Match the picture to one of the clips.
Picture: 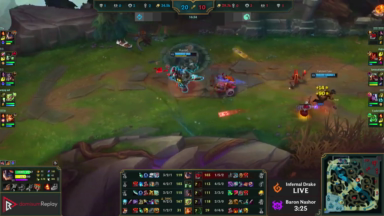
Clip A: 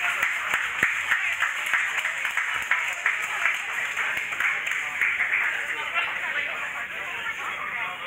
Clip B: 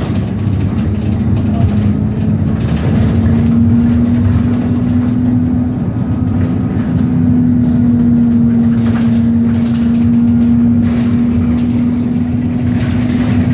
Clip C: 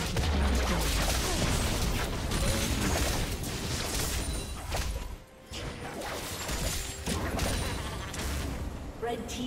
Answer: C